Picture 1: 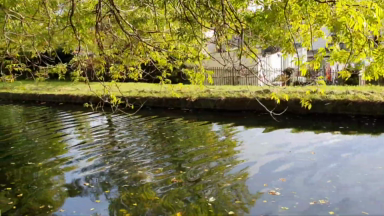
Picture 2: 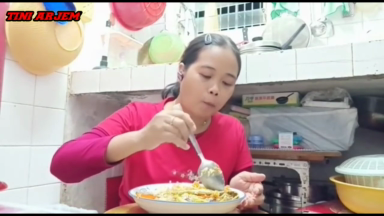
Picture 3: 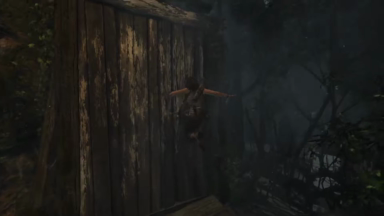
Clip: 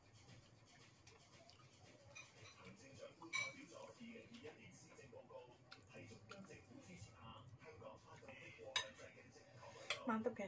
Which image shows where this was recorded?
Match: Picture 2